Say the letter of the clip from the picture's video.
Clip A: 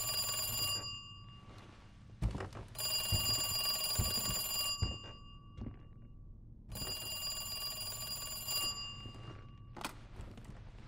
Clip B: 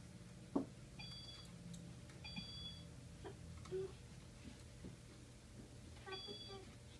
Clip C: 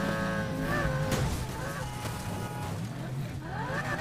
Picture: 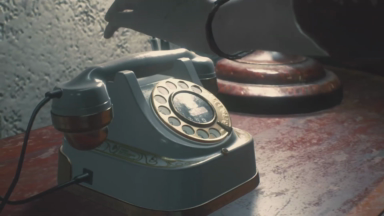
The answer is A